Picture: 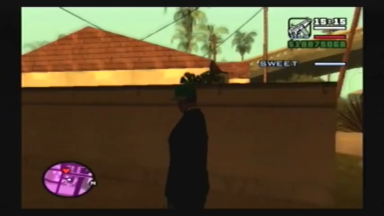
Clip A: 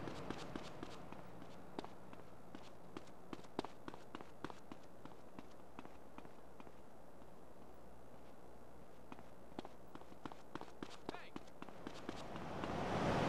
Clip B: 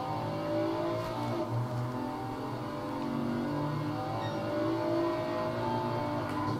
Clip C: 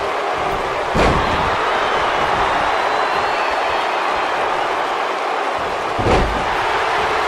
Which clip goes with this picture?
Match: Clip A